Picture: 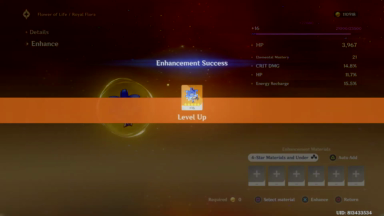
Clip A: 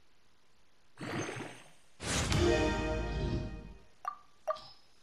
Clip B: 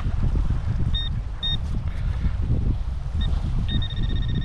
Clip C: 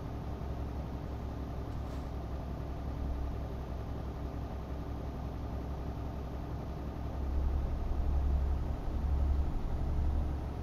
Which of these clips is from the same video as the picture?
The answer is A